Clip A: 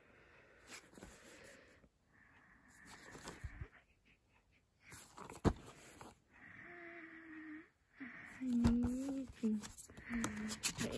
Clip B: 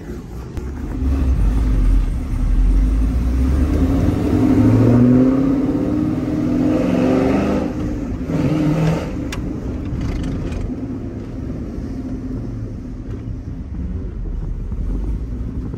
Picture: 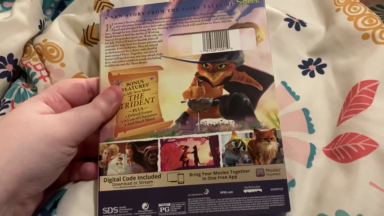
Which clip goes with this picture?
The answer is A